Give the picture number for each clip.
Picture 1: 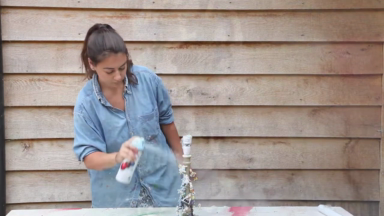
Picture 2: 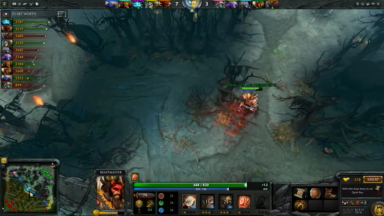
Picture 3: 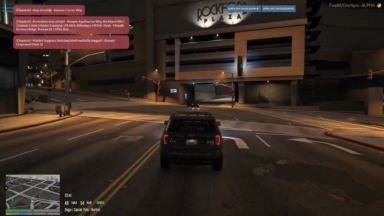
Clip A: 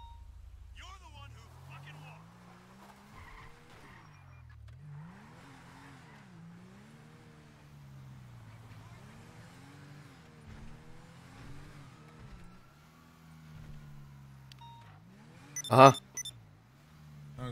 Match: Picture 3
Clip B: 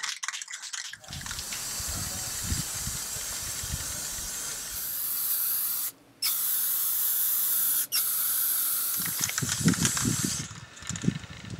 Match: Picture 1